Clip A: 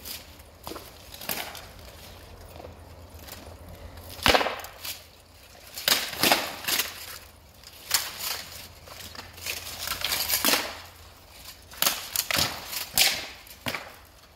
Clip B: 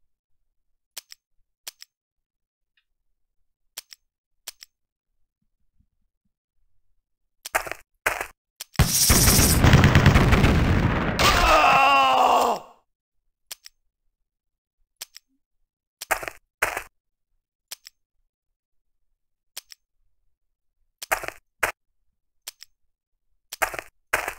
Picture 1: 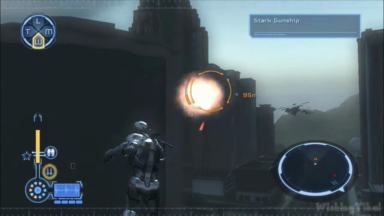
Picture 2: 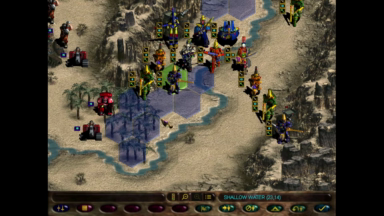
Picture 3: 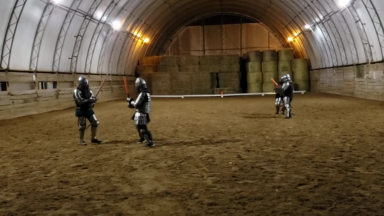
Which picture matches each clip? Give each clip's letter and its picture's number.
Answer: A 3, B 2